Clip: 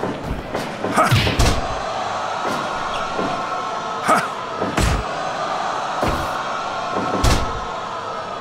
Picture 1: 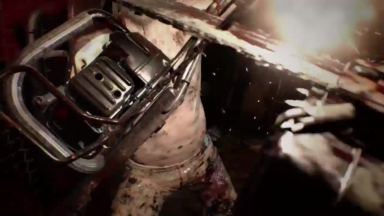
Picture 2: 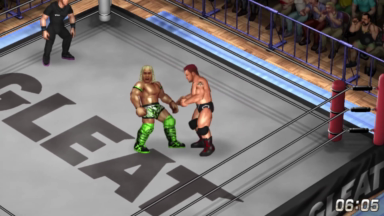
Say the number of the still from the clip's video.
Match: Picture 2